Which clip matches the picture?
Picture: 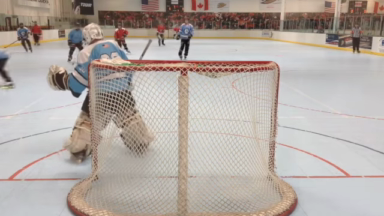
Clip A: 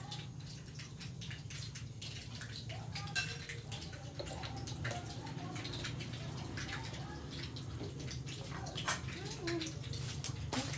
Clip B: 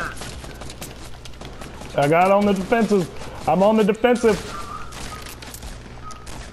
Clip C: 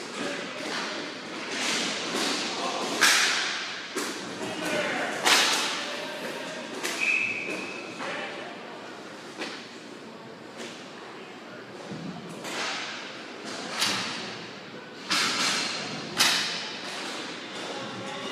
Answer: C